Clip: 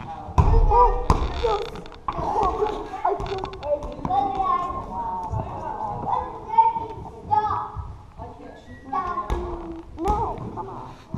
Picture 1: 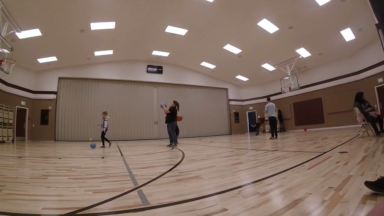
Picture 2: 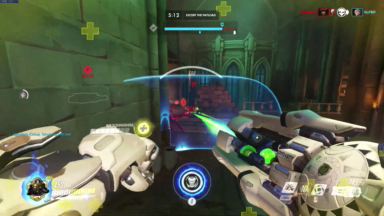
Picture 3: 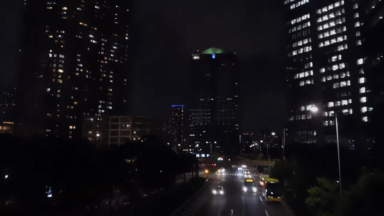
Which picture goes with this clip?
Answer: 1